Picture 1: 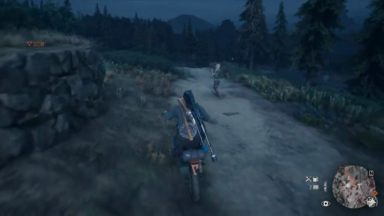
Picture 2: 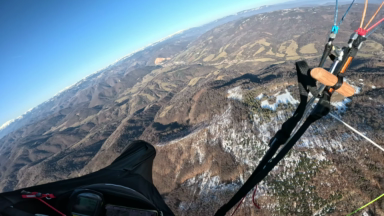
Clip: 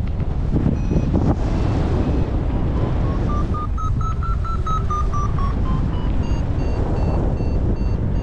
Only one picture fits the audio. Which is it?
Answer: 2